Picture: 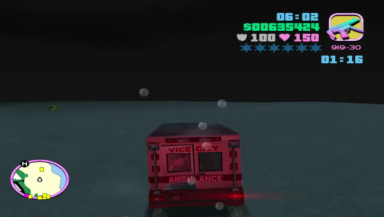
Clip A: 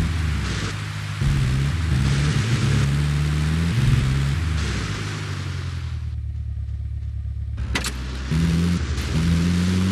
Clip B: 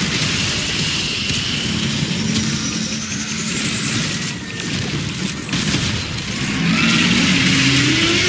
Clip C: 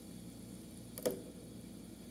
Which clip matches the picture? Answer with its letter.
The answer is A